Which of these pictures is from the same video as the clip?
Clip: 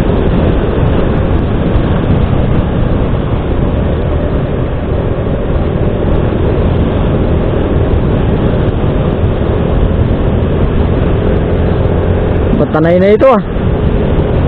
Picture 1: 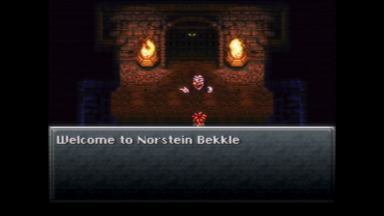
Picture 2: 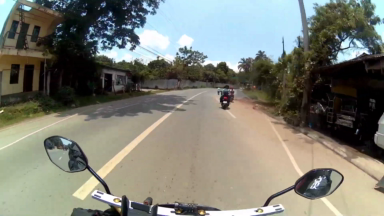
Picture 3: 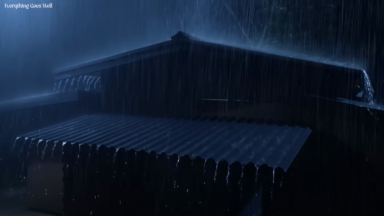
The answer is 2